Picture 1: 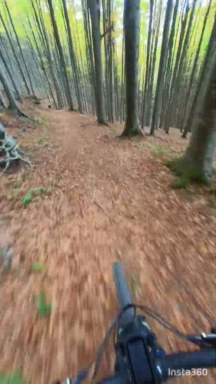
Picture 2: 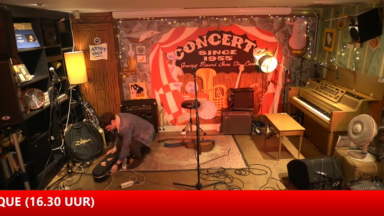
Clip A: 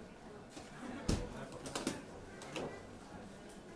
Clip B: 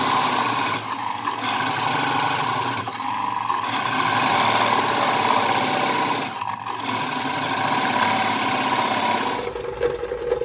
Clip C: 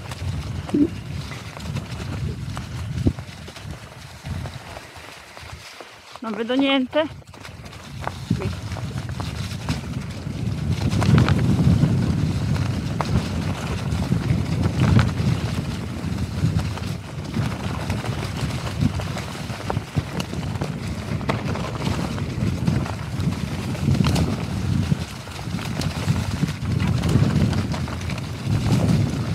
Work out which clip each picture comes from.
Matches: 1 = C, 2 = A